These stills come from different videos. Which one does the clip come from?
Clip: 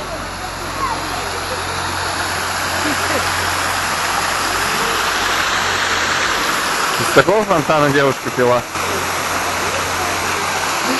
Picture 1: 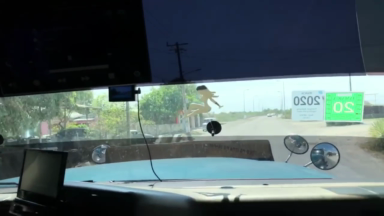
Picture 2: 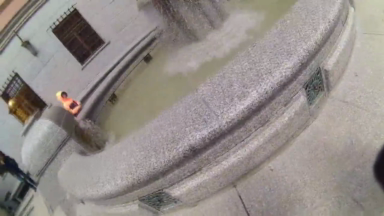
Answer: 2